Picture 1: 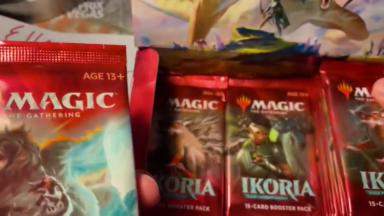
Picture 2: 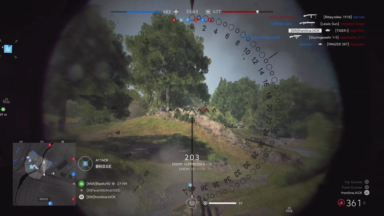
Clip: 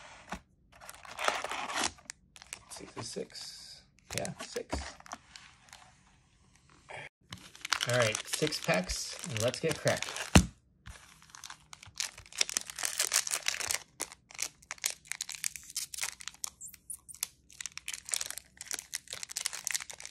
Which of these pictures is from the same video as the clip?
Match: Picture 1